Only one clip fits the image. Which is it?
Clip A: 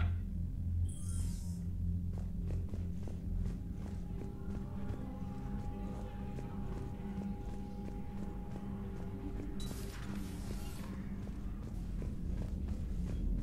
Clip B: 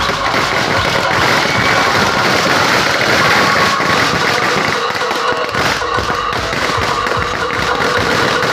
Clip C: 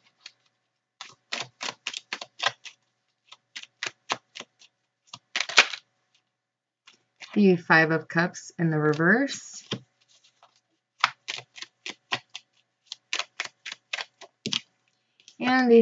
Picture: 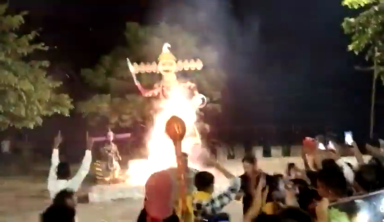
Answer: B